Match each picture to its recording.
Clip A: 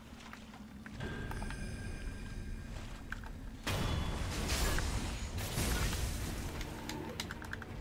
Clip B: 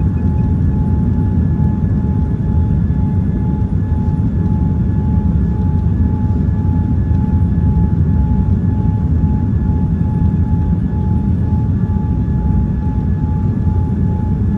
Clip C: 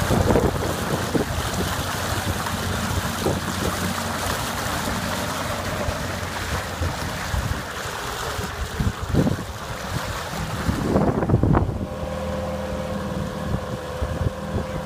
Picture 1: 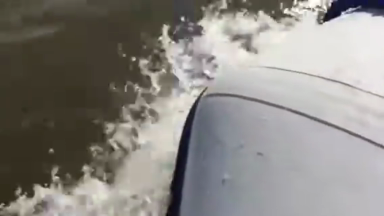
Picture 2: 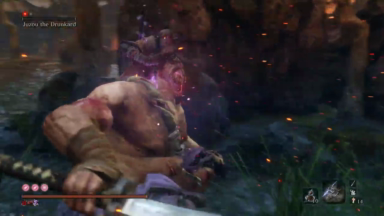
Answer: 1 C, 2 A